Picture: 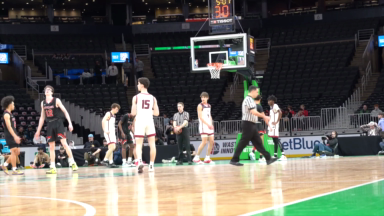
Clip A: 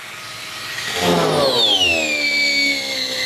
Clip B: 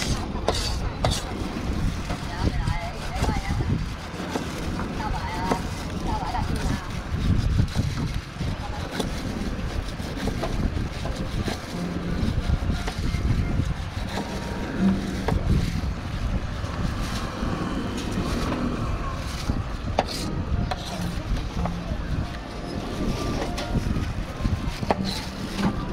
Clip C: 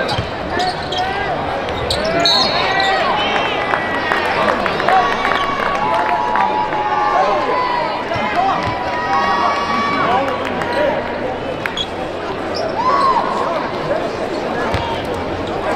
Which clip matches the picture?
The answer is C